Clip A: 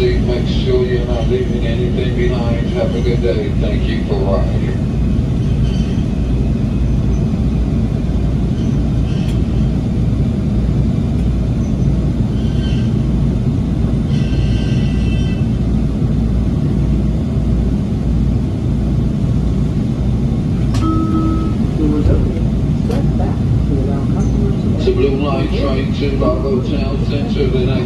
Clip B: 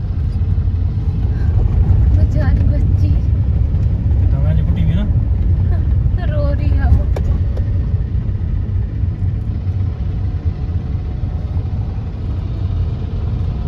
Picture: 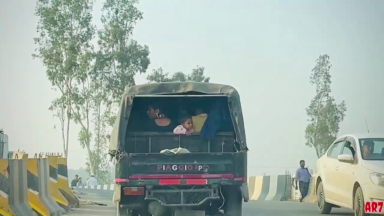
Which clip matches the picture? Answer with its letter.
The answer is B